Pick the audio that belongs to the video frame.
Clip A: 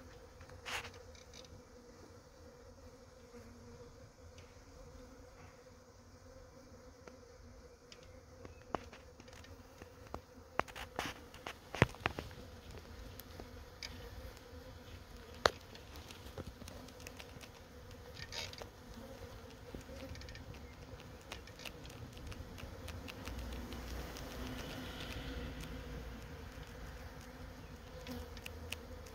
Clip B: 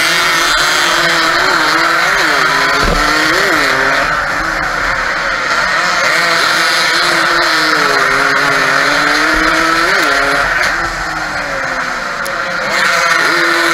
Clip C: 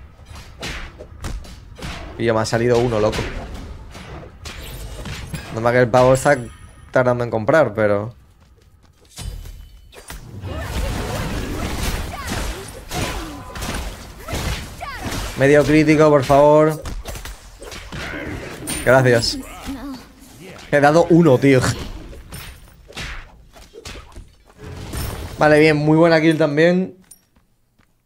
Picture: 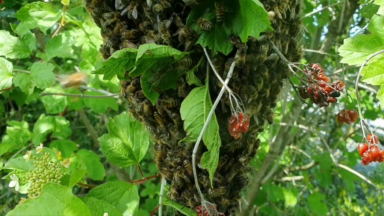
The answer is A